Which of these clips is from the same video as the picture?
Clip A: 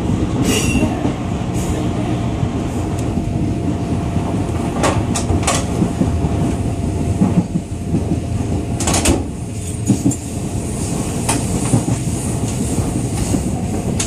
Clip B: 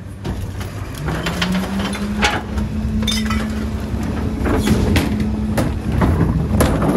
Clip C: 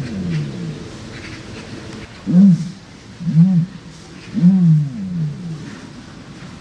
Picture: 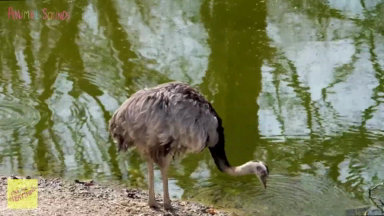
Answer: C